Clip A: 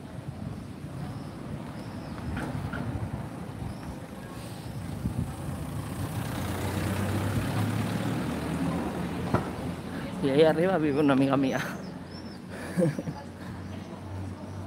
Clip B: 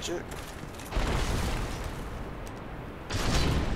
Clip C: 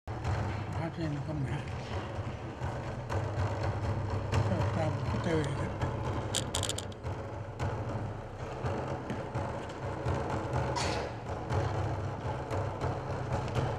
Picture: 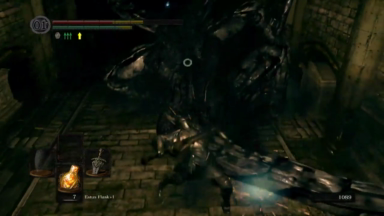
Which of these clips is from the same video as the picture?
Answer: B